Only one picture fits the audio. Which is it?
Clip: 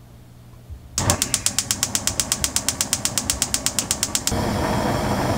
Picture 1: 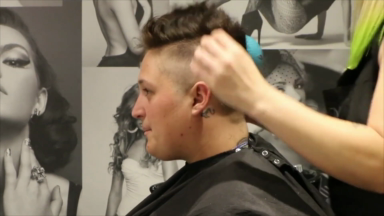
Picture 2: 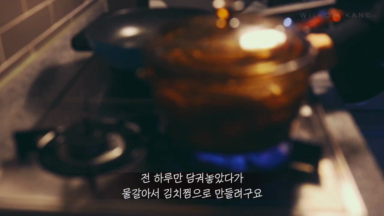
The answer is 2